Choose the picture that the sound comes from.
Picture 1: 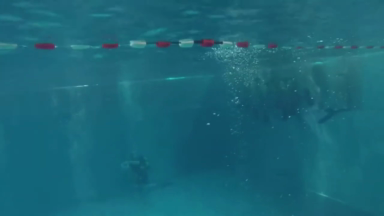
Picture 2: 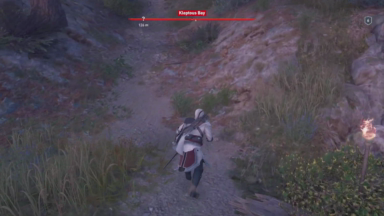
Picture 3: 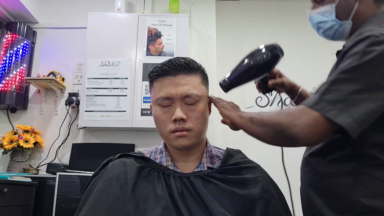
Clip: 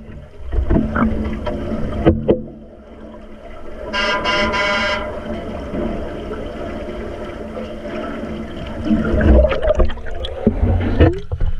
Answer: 1